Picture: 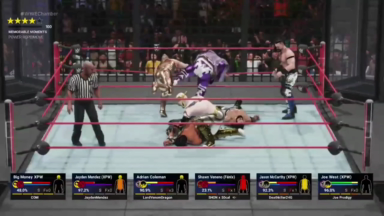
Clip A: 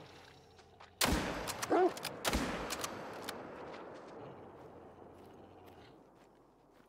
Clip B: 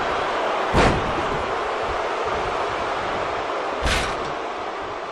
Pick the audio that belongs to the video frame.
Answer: B